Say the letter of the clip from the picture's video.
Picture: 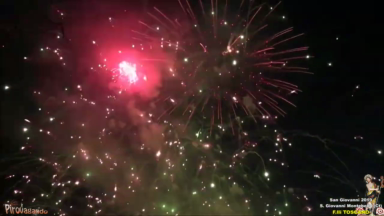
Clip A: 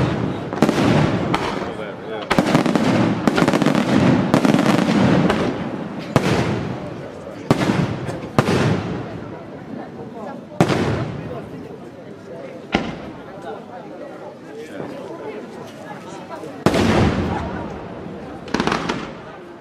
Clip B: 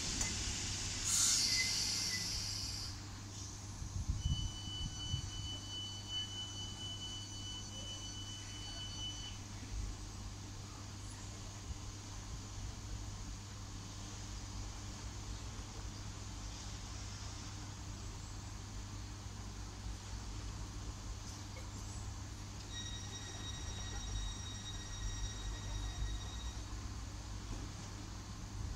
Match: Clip A